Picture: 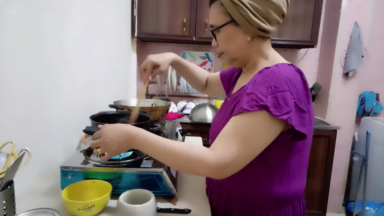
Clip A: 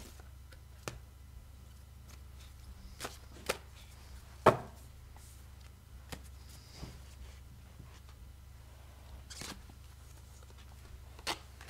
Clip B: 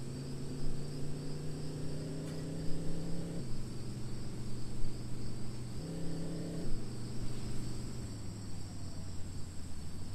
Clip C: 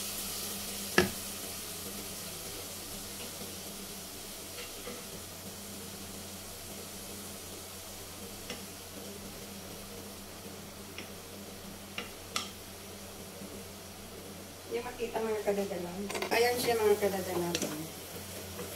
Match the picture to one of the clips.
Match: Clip C